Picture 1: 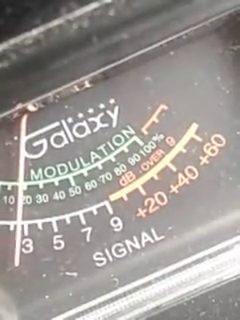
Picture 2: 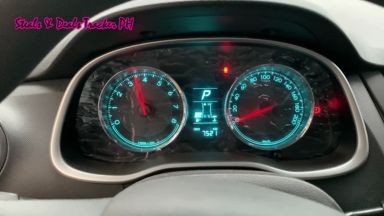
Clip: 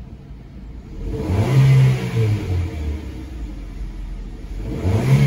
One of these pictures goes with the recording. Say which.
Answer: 2